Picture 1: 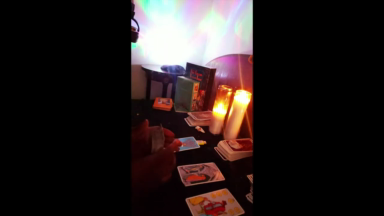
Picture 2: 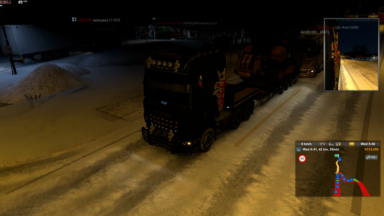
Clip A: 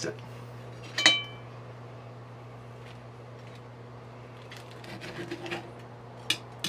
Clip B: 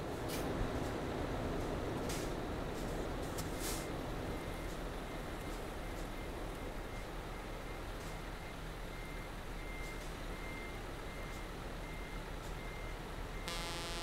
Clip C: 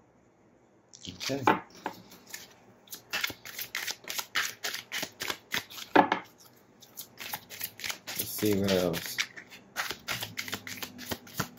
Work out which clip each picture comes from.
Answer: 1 C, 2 B